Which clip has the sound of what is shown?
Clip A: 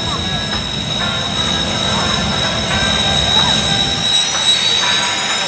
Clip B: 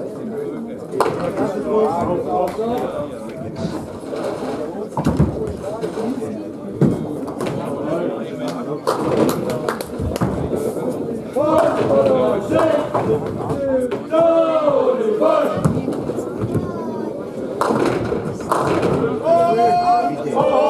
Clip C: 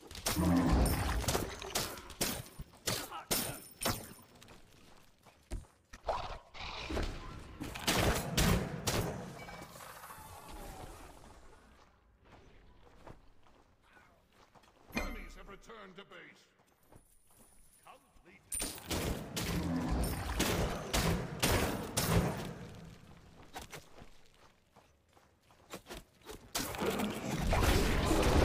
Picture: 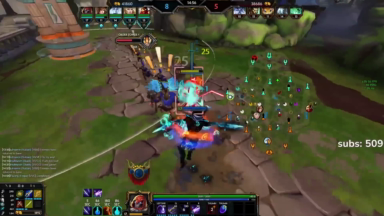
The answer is C